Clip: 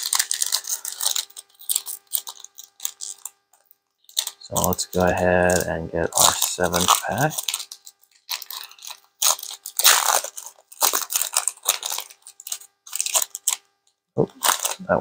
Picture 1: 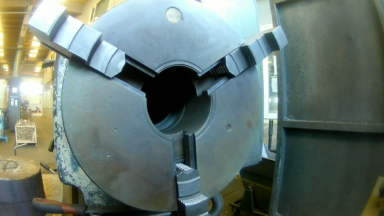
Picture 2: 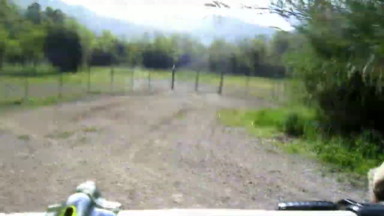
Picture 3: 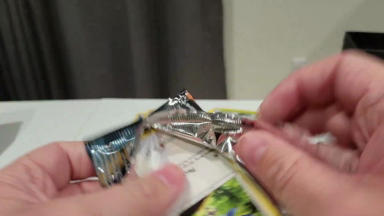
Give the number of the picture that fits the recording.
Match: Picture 3